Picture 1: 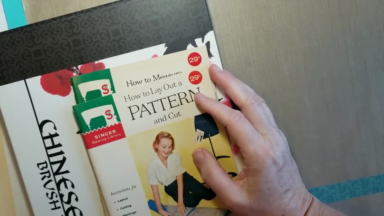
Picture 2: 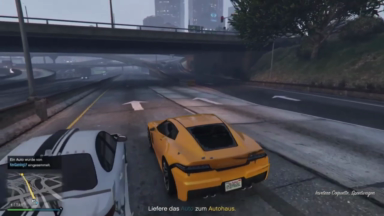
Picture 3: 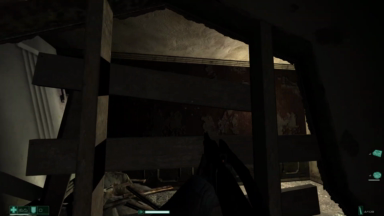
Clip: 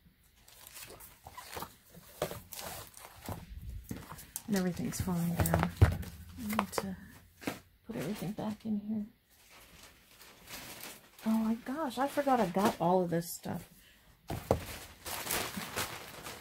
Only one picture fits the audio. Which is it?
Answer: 1